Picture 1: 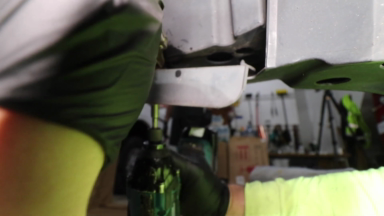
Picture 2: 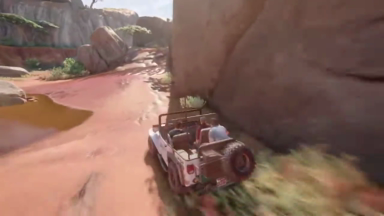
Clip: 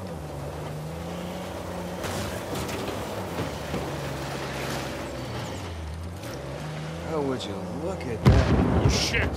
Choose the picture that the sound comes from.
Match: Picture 2